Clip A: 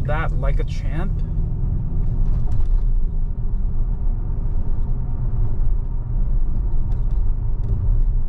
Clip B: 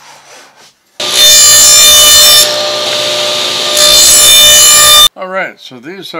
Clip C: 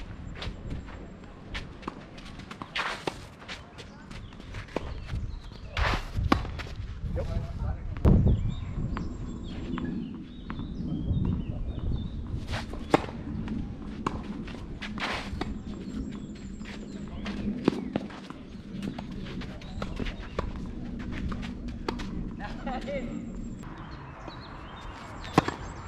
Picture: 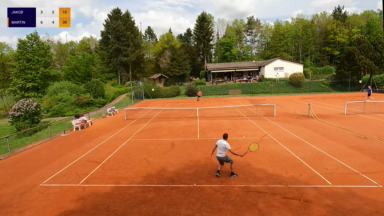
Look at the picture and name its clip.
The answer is C